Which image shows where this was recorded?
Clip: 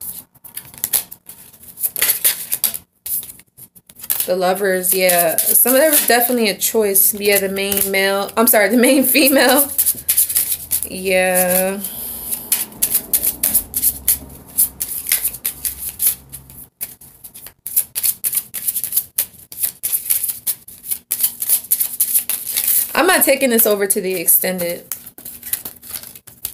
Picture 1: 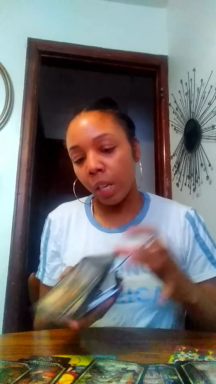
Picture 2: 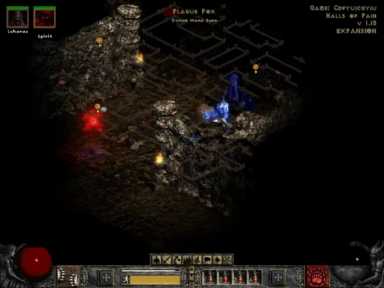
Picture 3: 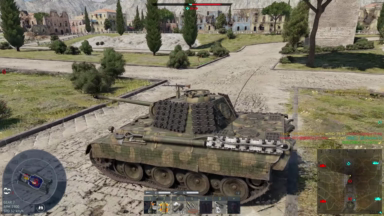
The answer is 1